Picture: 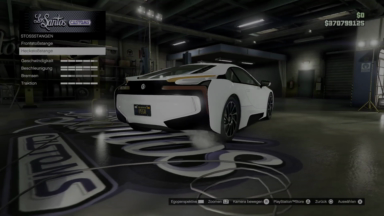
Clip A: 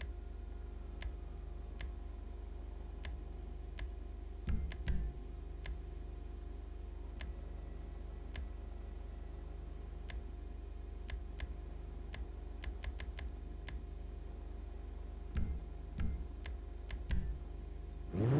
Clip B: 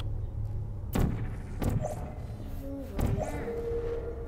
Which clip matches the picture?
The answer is A